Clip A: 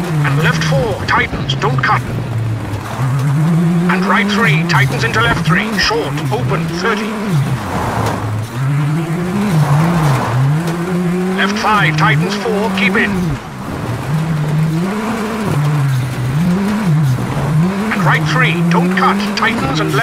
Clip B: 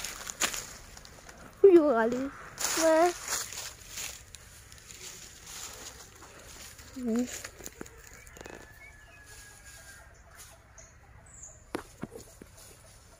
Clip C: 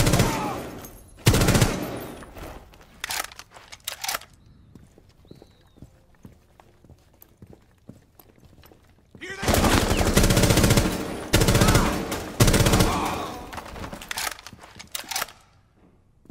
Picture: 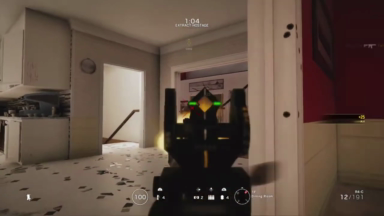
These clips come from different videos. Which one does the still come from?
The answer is C